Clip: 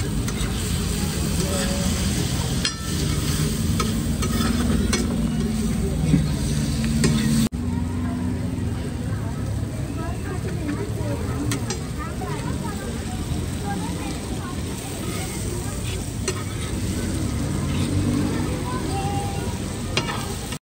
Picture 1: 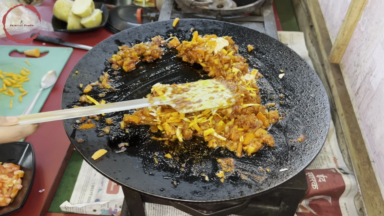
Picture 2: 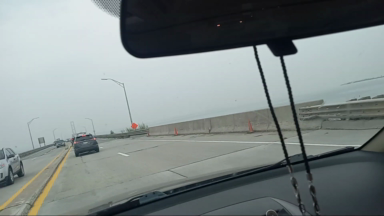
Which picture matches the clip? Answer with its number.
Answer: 1